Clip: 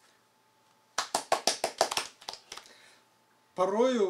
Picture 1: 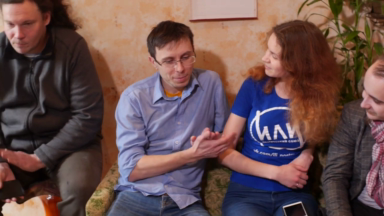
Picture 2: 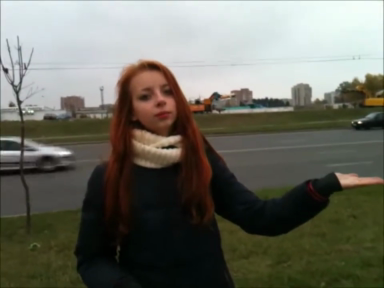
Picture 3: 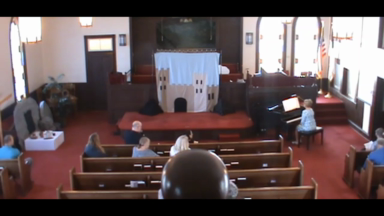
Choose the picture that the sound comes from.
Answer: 1